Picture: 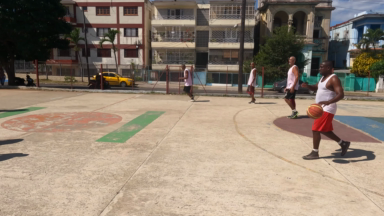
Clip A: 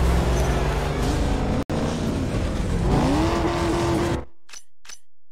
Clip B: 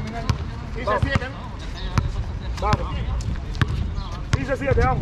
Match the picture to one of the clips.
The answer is B